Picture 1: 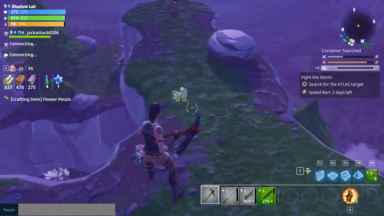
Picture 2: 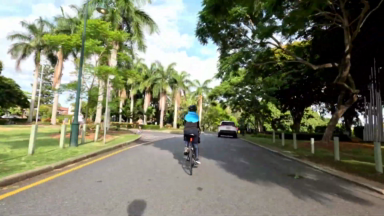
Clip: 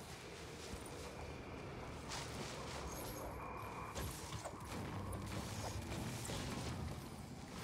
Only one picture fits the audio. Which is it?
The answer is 1